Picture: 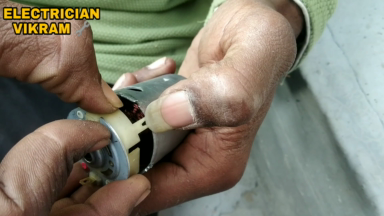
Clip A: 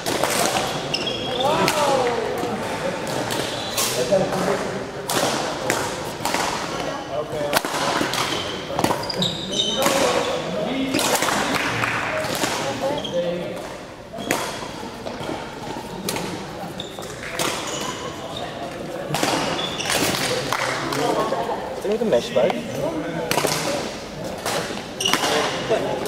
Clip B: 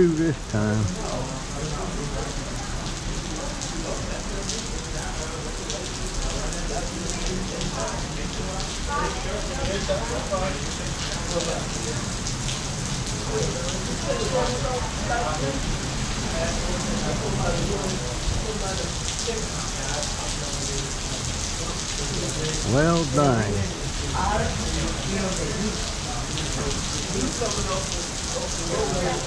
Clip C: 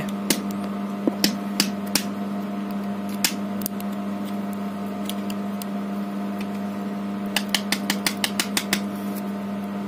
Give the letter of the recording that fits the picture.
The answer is C